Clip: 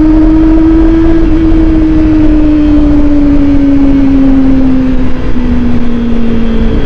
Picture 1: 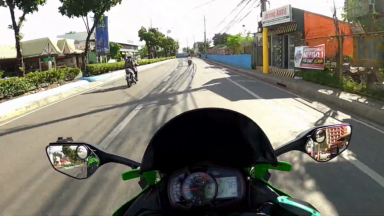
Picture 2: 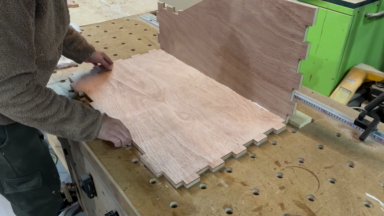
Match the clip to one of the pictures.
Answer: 1